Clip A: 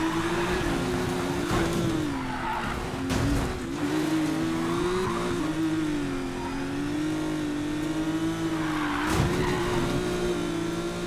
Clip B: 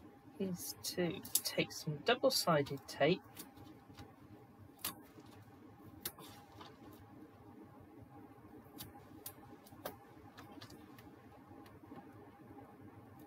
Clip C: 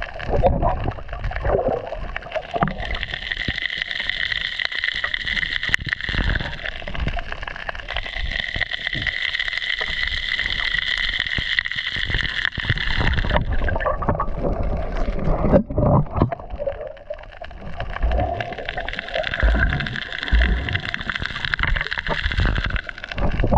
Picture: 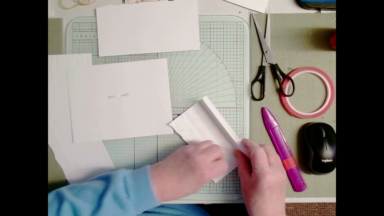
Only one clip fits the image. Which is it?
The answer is B